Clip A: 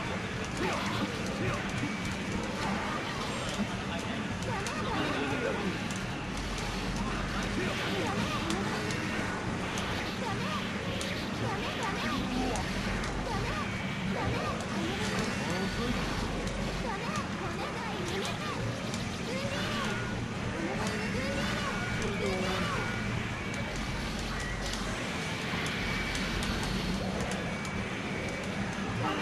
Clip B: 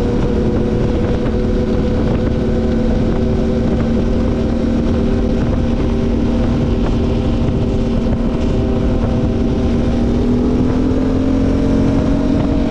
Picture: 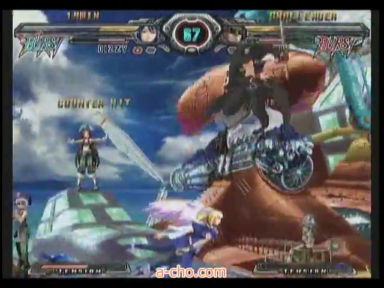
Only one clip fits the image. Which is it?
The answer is A